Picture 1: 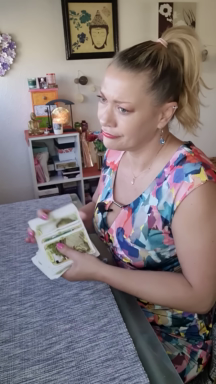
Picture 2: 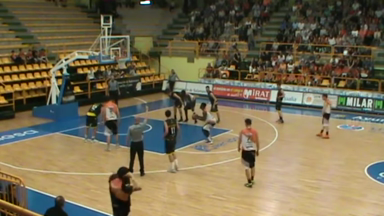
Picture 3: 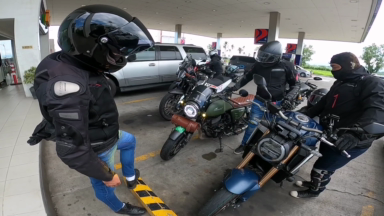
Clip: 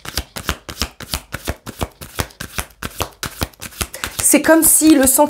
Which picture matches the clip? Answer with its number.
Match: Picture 1